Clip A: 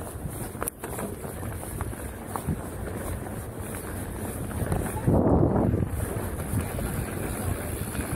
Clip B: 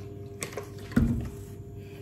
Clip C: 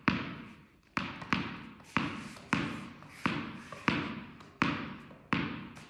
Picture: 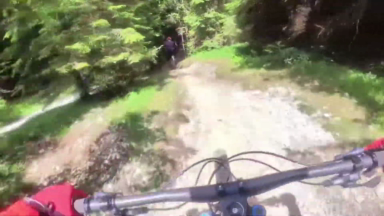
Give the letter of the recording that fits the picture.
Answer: A